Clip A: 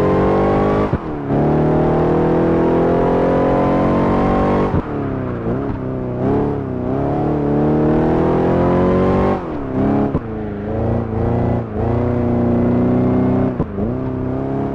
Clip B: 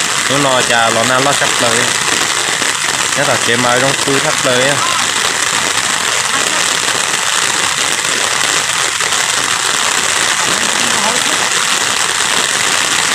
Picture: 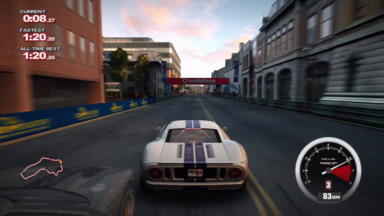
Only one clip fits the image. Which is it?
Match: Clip A